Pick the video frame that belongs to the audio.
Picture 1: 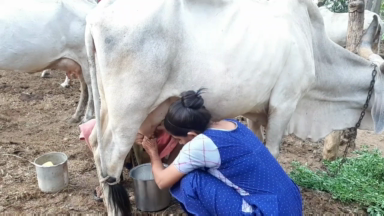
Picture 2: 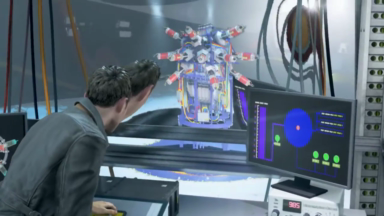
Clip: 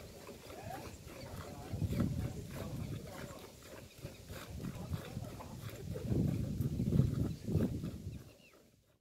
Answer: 1